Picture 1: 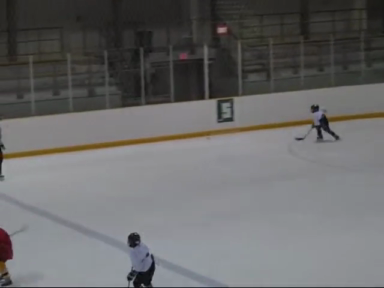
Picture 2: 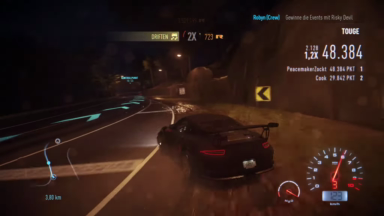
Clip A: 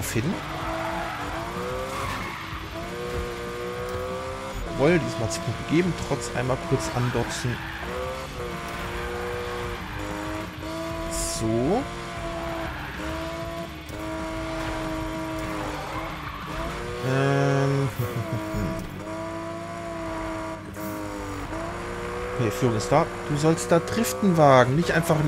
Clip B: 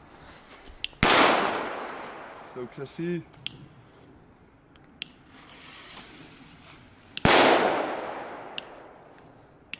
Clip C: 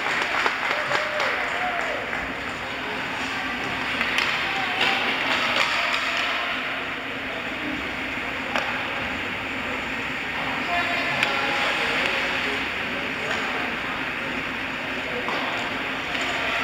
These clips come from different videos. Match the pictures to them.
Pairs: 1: C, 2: A